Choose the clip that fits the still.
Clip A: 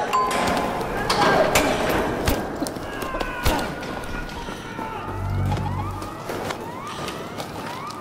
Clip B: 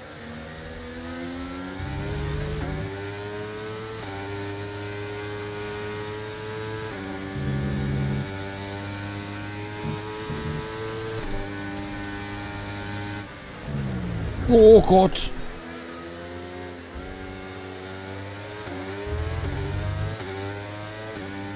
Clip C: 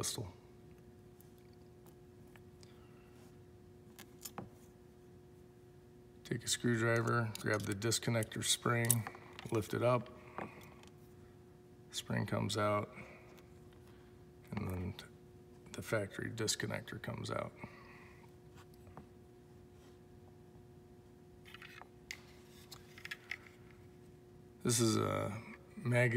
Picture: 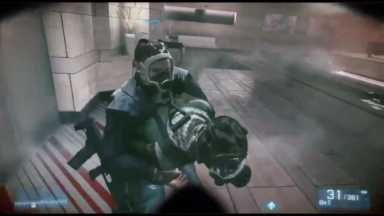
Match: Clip A